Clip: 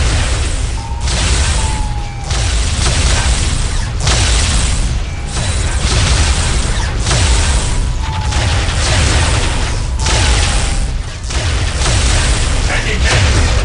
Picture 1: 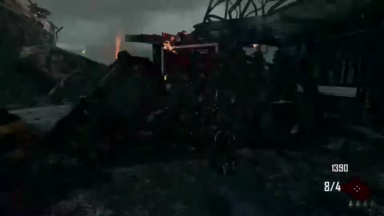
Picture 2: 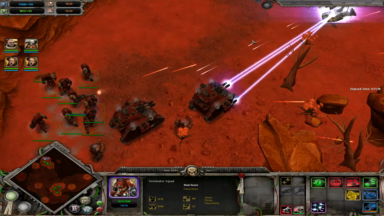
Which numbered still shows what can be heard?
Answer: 2